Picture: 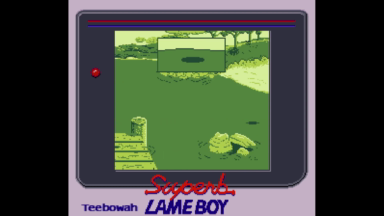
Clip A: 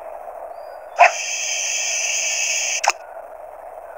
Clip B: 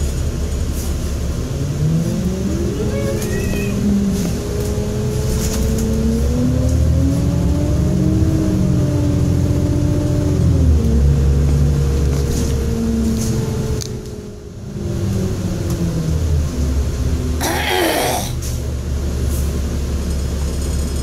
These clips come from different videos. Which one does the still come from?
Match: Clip A